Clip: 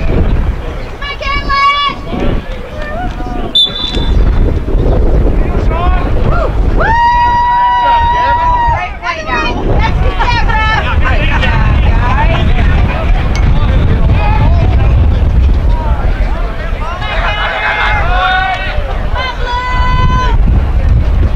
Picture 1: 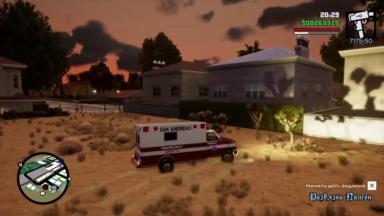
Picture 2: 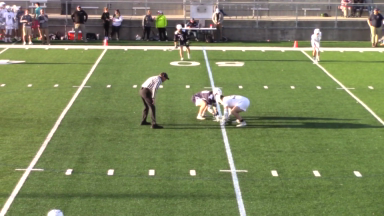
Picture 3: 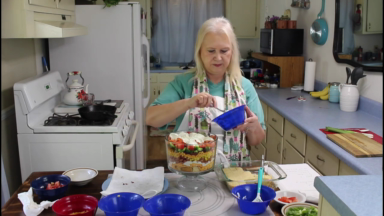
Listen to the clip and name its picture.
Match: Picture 2